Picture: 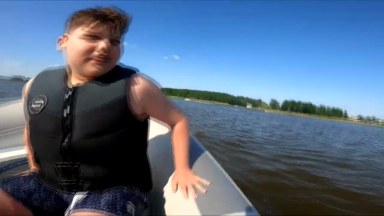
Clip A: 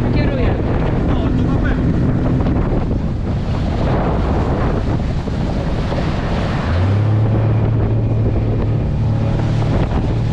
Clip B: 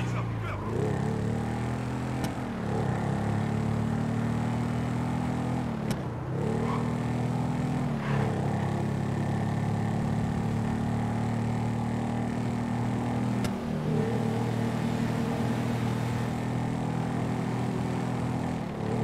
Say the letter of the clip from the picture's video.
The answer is A